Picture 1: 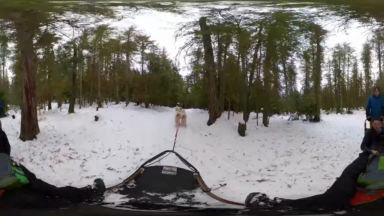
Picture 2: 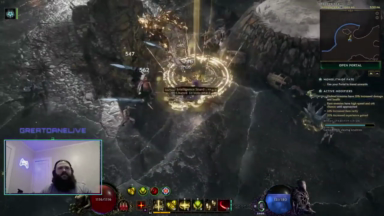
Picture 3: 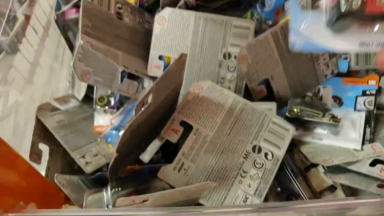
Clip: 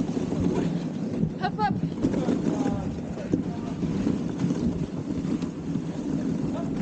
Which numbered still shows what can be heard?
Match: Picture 1